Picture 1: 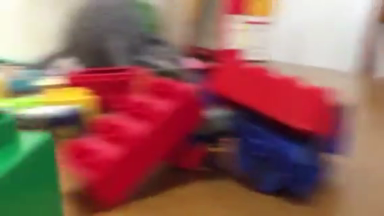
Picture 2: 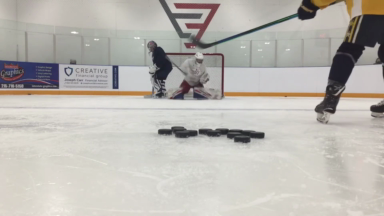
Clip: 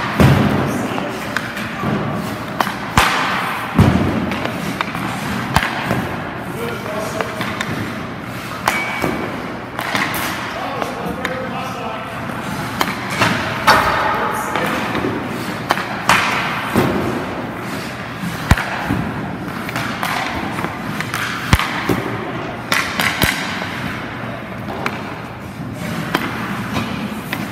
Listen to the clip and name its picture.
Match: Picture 2